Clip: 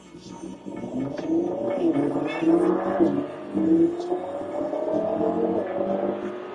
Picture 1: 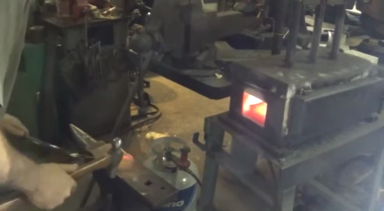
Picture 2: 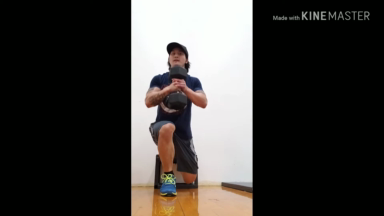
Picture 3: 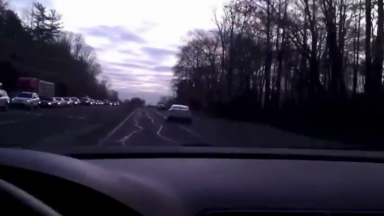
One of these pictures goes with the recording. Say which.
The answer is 3